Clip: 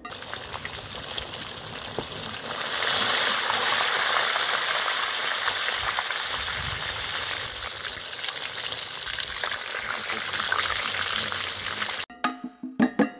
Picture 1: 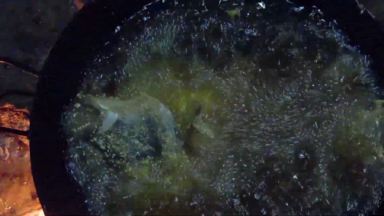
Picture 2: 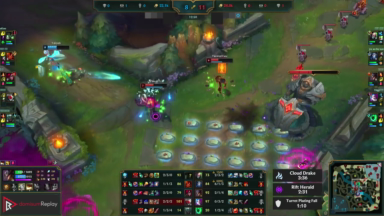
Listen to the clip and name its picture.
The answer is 1